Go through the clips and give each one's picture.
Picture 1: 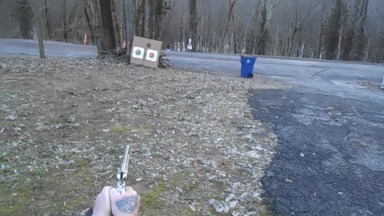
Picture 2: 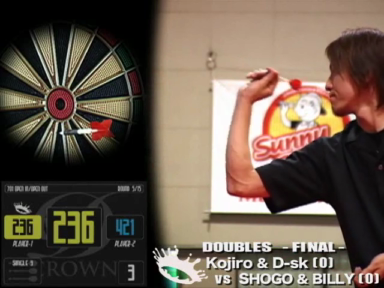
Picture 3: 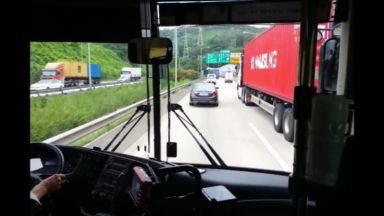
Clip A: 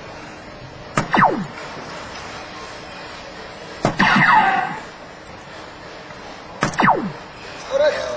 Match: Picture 2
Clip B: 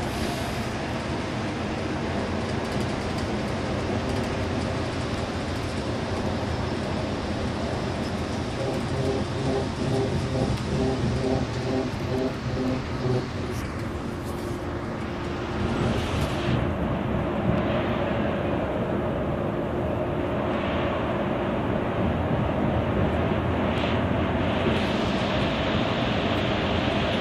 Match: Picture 3